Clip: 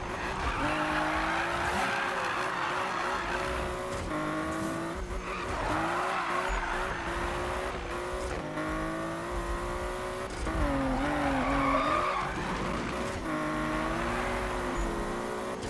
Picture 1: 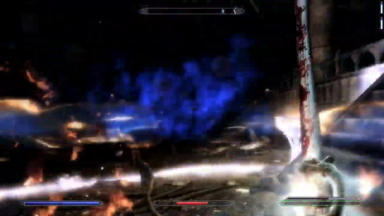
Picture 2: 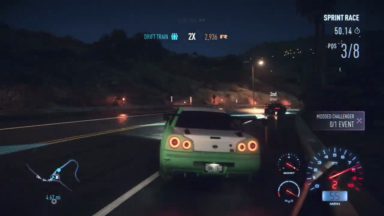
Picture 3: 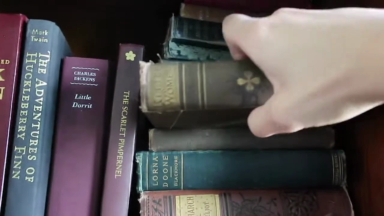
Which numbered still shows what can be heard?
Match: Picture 2